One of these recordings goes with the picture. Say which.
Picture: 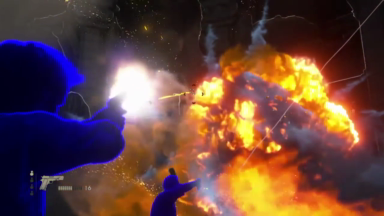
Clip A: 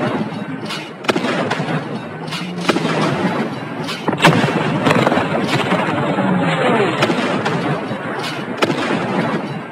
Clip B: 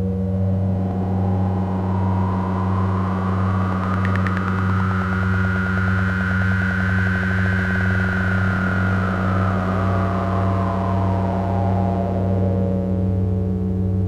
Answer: A